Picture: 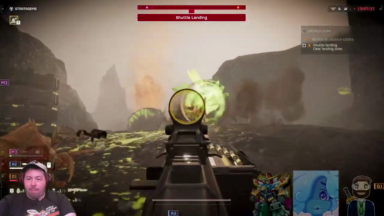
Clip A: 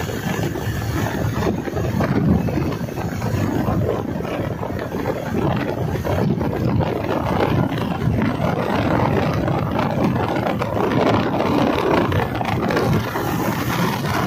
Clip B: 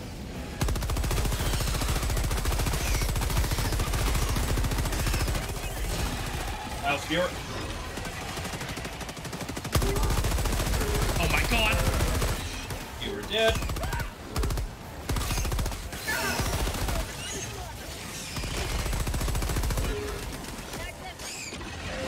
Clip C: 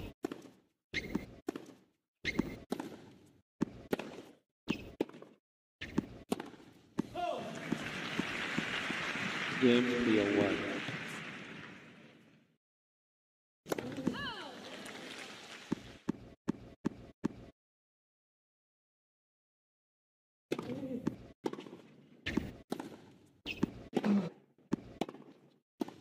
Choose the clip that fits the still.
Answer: B